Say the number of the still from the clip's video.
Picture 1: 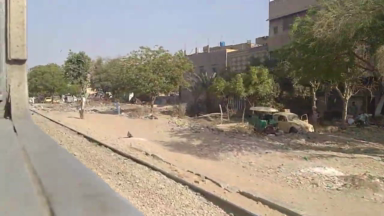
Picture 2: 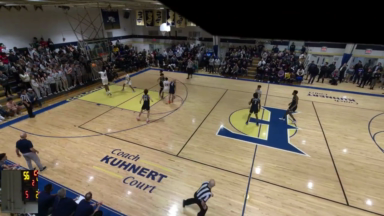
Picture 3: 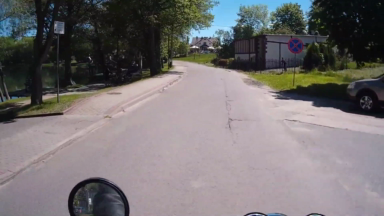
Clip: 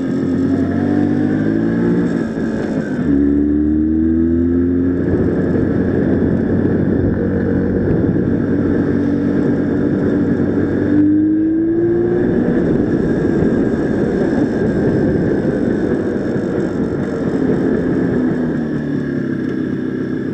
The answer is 3